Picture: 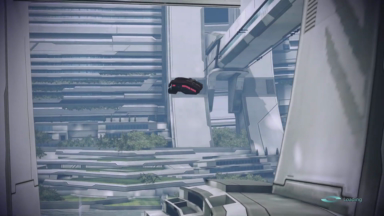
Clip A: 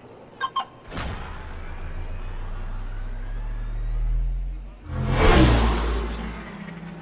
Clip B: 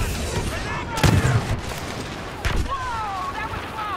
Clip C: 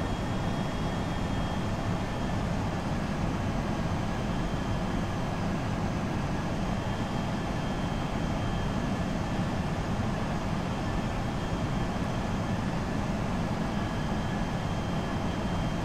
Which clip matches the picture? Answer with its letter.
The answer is A